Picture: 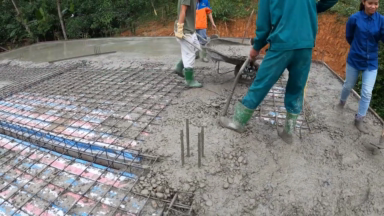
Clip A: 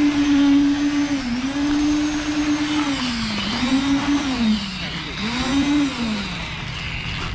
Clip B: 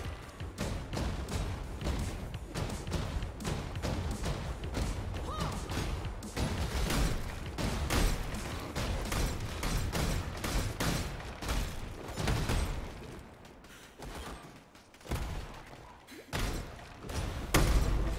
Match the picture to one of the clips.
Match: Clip A